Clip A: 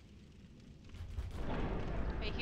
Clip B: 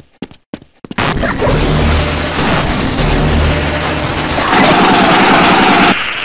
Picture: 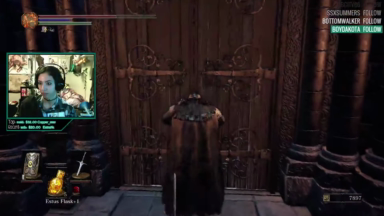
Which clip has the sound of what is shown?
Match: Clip A